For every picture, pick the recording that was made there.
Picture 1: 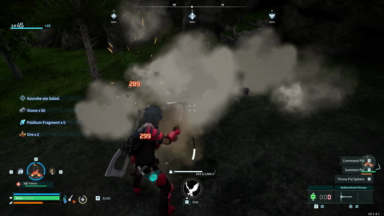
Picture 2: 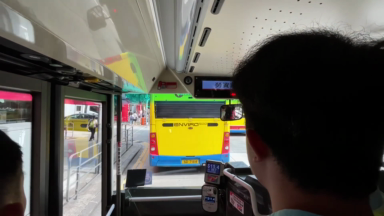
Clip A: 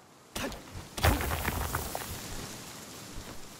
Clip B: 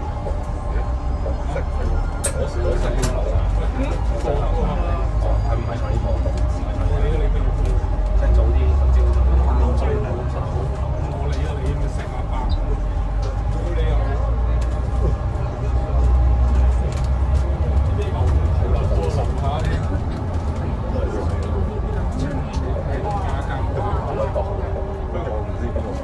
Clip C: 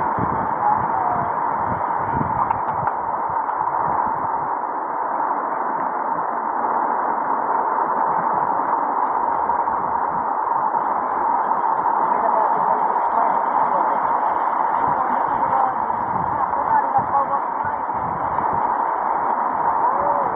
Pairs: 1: A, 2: B